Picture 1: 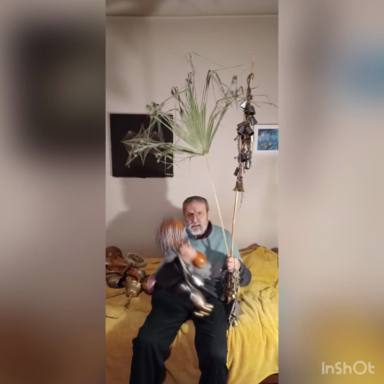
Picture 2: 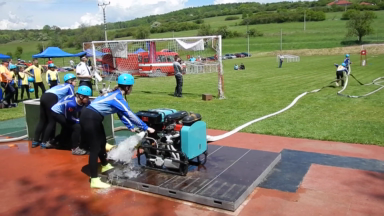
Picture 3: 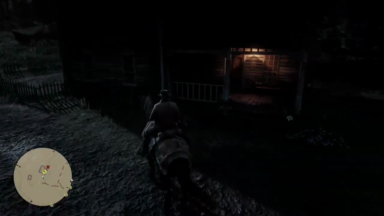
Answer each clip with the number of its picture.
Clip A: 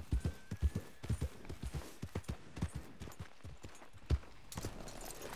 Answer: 3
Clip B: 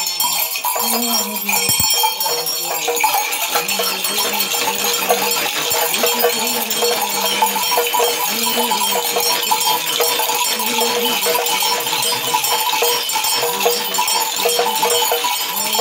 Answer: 1